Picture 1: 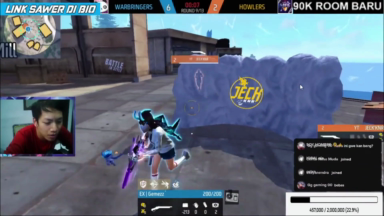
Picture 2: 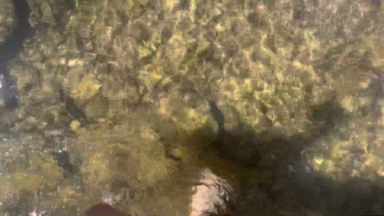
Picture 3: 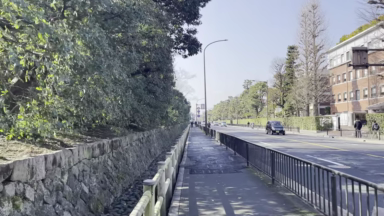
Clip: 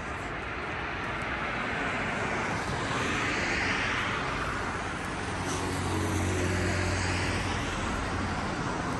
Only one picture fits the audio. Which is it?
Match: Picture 3